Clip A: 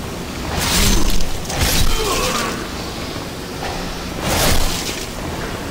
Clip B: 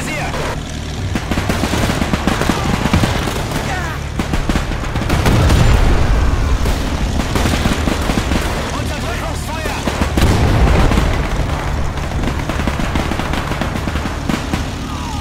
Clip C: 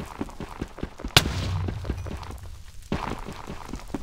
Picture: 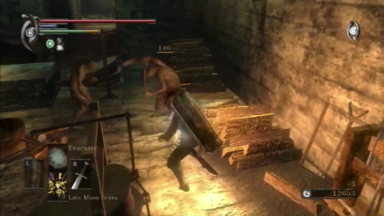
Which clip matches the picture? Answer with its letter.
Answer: A